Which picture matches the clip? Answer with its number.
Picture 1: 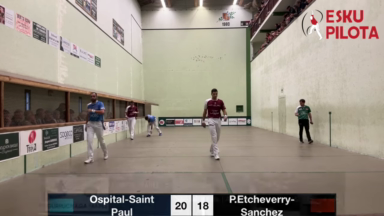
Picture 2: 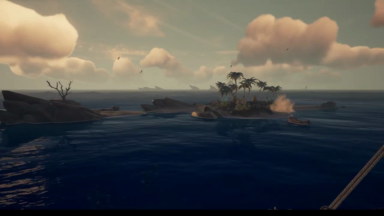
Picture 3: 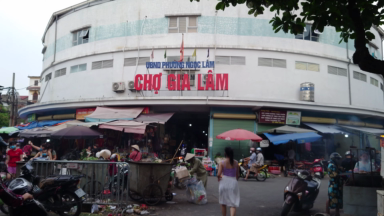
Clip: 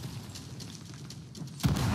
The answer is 2